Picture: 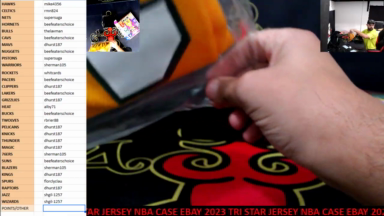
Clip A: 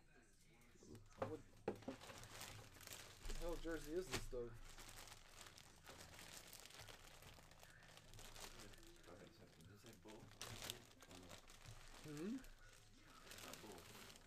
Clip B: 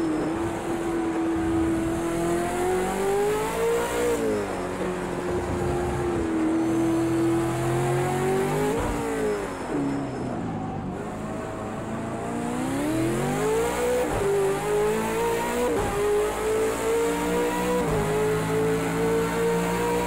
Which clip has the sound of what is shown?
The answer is A